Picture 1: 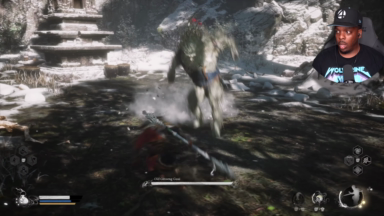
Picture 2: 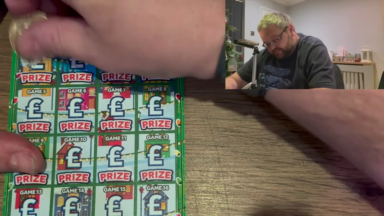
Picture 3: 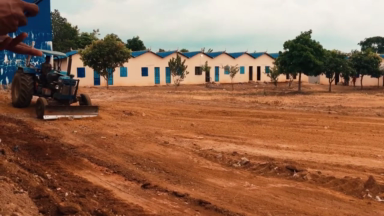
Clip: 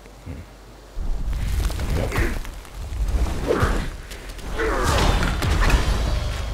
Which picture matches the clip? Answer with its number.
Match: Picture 1